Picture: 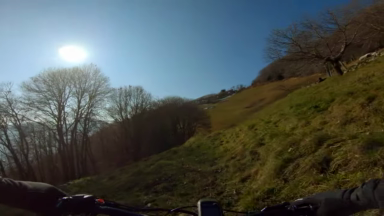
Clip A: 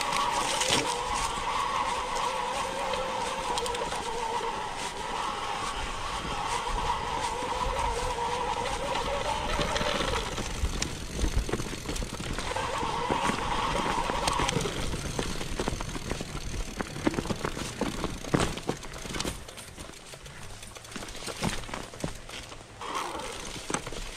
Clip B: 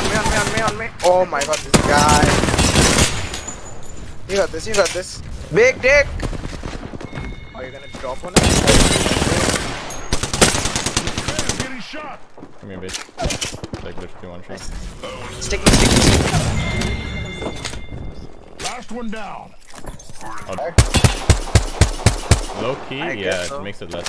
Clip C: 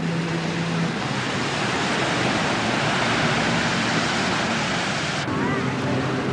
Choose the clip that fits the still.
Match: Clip A